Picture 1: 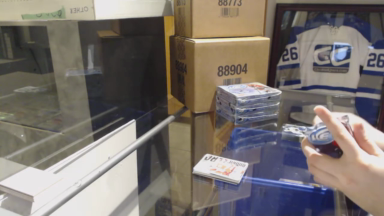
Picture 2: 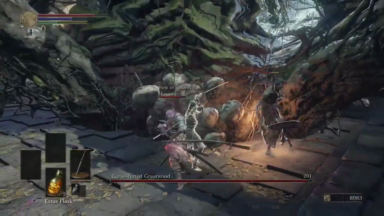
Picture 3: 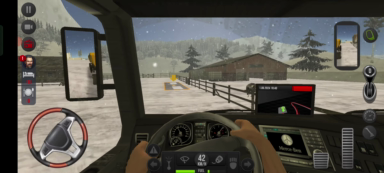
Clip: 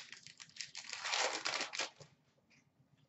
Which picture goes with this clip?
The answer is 1